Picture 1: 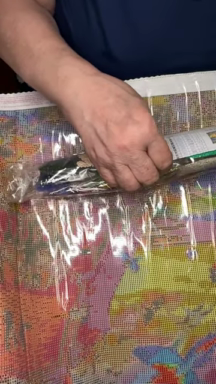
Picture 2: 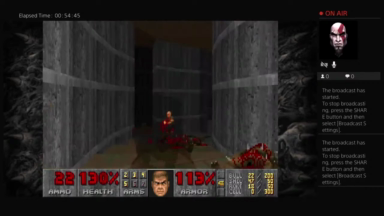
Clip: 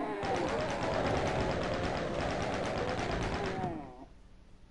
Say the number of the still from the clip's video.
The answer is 2